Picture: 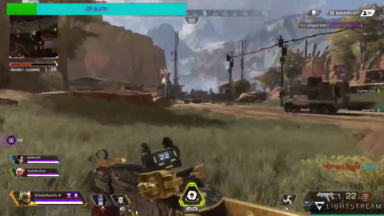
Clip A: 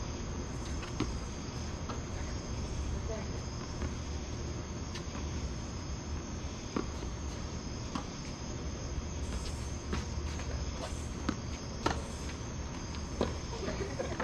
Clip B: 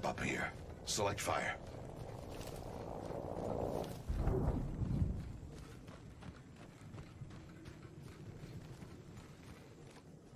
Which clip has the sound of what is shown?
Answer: B